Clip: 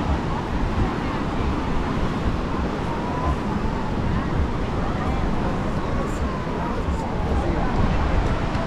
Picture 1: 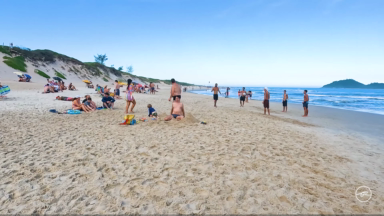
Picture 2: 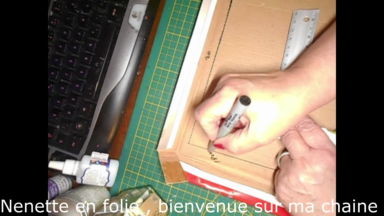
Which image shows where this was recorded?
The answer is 1